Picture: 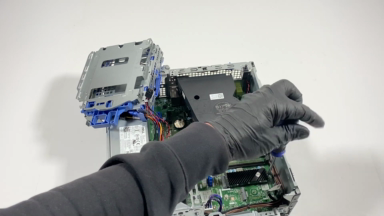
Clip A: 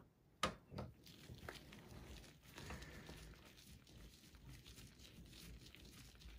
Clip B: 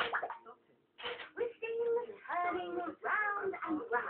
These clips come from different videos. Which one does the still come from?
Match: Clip A